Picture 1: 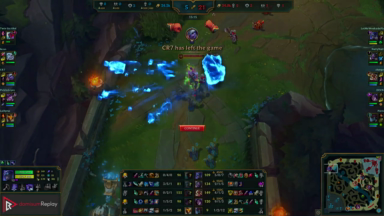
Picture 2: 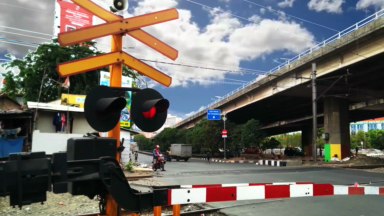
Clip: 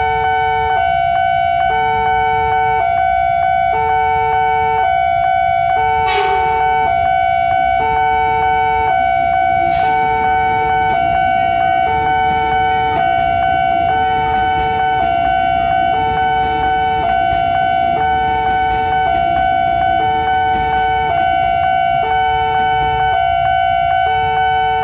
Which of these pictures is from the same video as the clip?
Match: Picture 2